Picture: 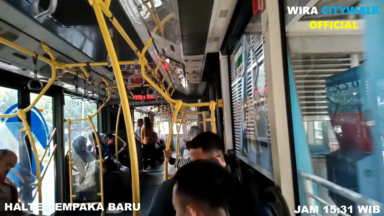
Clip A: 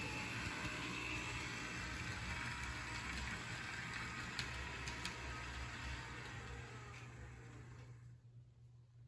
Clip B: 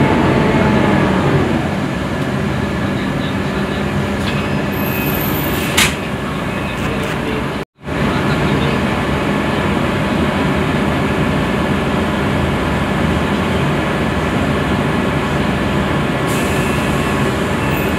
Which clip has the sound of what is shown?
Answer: B